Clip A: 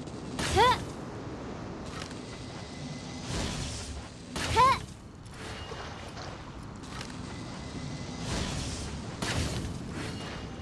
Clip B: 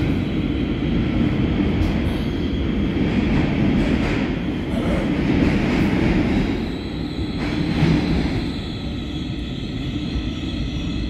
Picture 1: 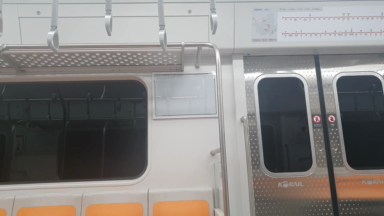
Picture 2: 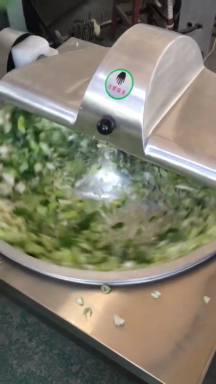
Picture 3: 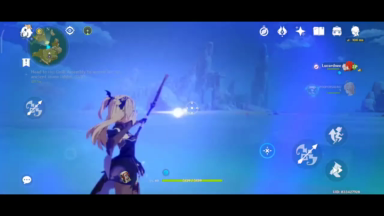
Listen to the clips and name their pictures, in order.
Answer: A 3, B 1